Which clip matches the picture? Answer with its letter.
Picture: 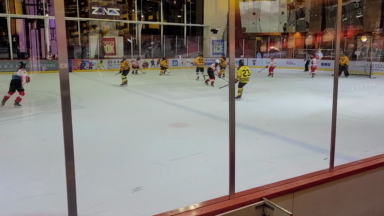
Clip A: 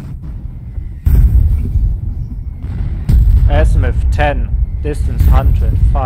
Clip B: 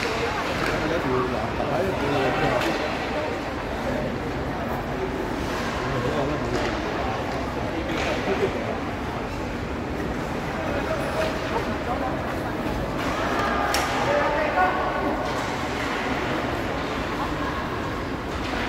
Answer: B